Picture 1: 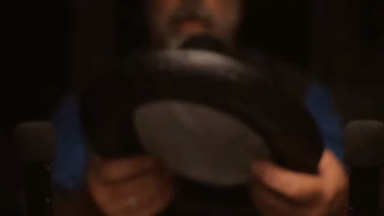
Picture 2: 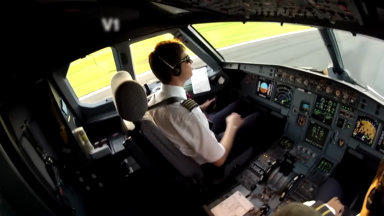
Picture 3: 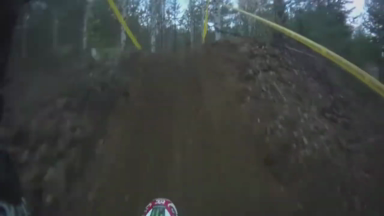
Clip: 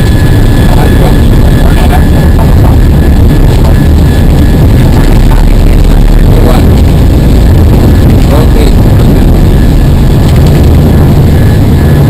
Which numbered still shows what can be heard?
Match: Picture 2